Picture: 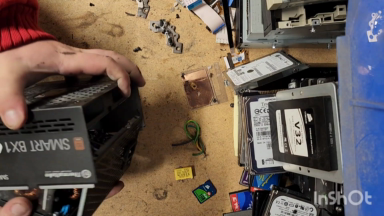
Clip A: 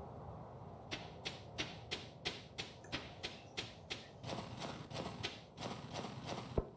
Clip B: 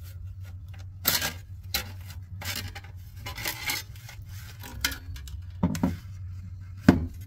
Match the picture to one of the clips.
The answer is B